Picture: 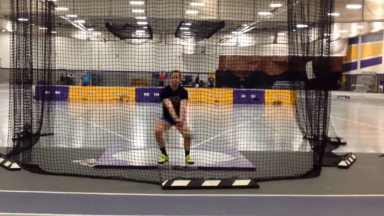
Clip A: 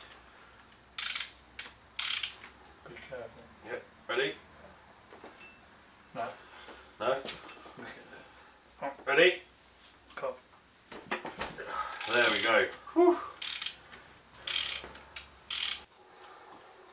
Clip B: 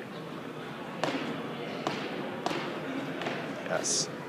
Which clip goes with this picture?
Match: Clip B